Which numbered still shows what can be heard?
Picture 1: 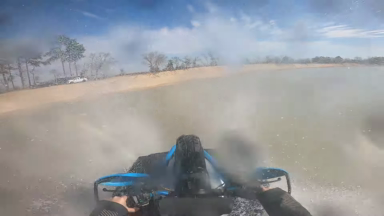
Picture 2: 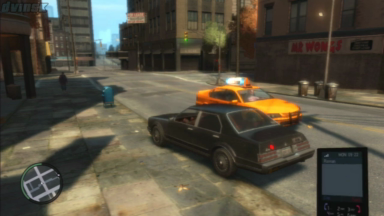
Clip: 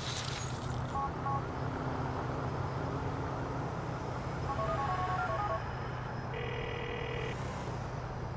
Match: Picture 2